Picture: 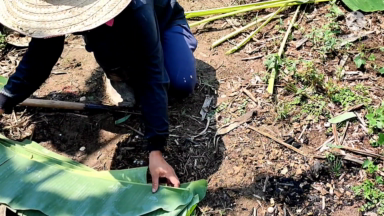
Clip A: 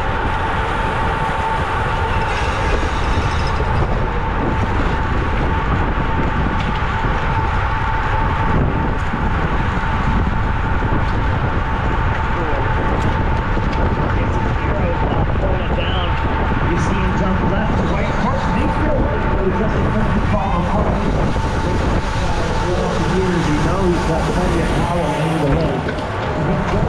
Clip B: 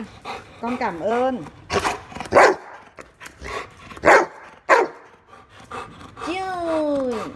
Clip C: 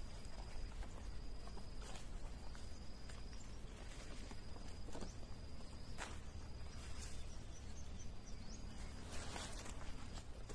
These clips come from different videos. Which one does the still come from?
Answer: C